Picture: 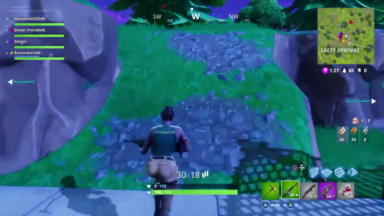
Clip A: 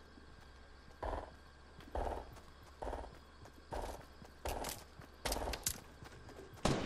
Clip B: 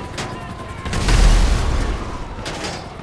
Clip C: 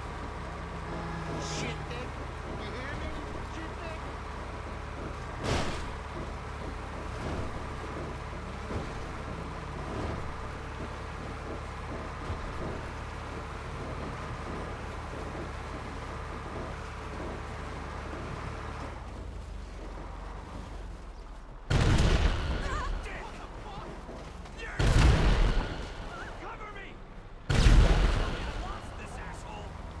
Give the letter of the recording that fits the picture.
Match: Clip A